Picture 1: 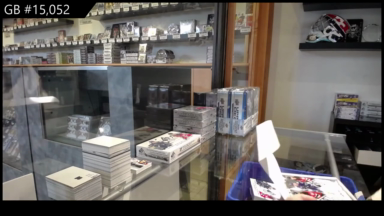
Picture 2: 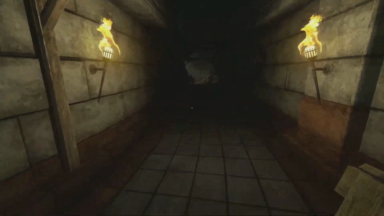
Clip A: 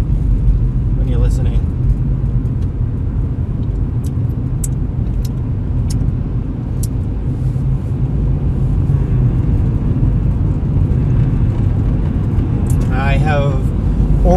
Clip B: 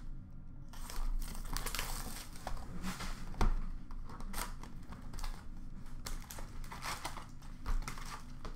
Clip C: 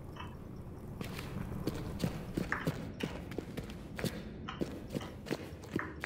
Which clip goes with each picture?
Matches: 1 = B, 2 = C